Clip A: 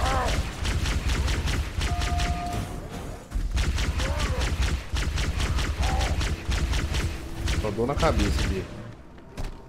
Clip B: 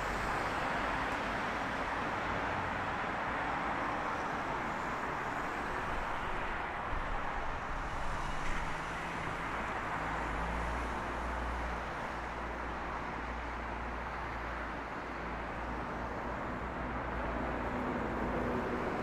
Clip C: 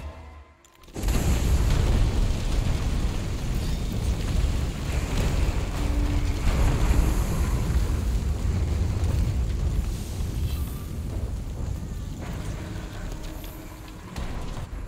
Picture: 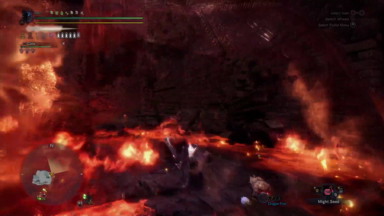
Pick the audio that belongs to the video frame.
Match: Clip C